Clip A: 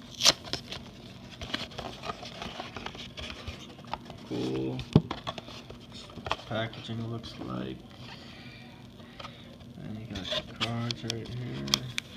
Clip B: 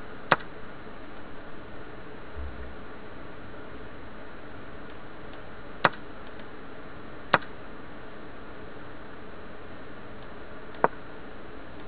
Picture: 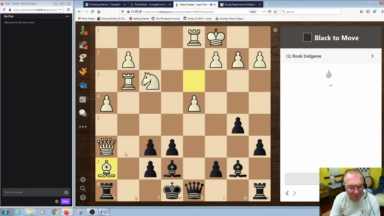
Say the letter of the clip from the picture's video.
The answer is B